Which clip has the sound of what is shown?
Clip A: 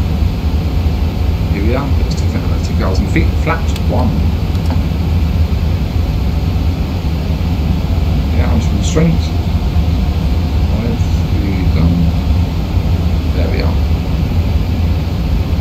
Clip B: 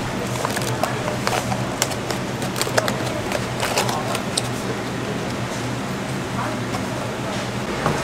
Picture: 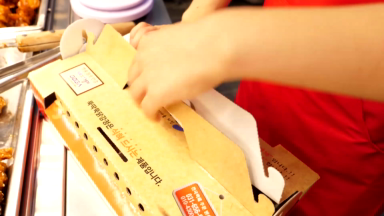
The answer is B